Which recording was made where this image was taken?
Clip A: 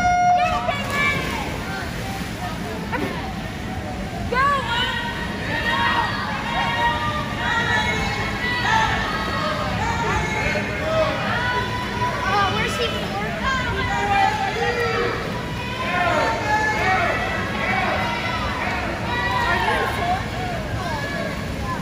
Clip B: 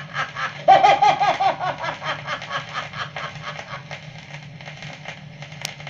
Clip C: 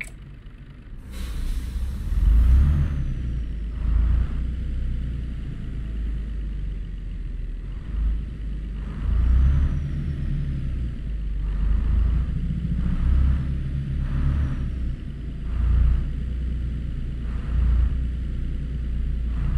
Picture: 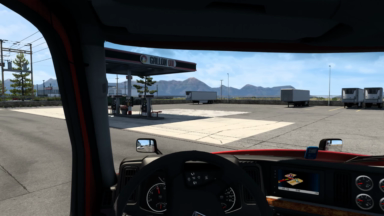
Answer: C